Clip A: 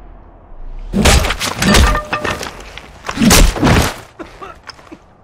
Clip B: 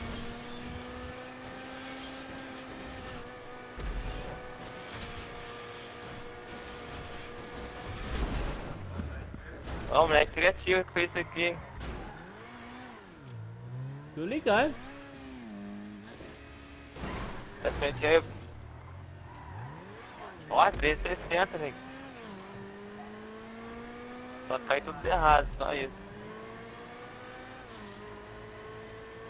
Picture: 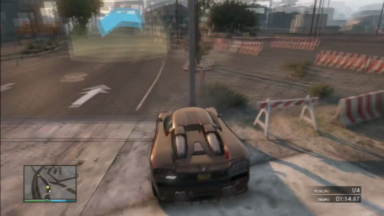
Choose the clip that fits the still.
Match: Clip B